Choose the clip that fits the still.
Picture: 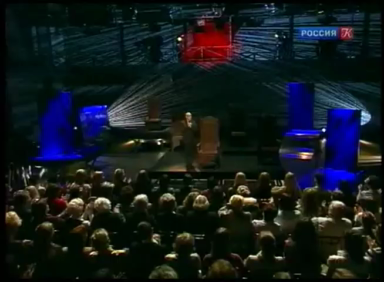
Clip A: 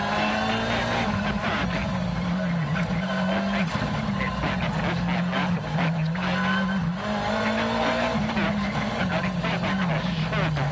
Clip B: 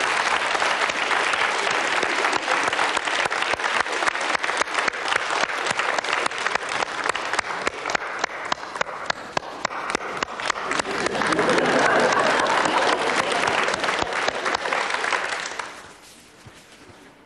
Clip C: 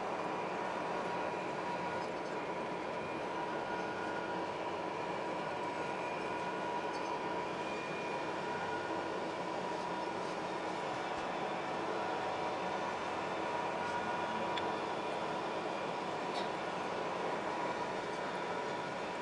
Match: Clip B